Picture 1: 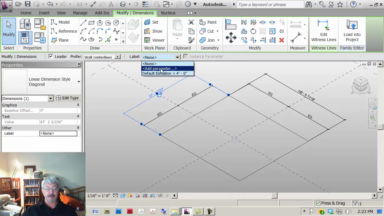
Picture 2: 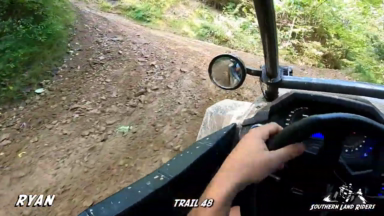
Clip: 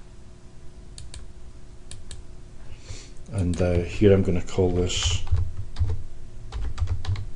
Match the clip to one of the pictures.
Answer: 1